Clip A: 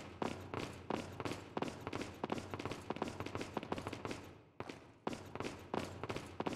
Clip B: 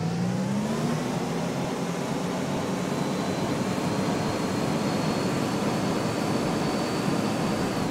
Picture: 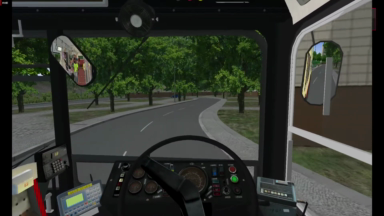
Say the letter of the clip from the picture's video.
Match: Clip B